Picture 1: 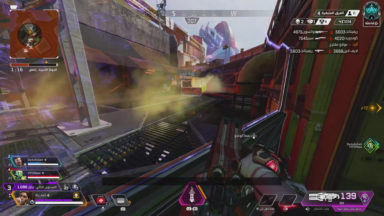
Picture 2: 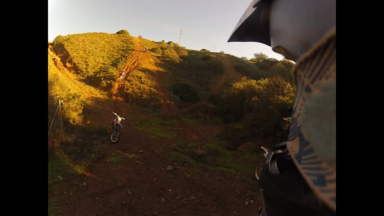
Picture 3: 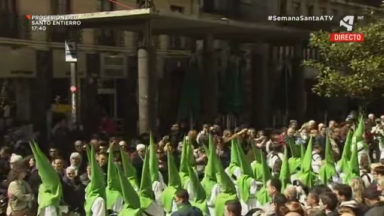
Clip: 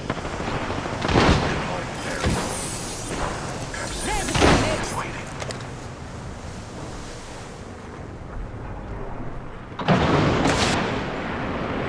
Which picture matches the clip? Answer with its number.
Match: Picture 1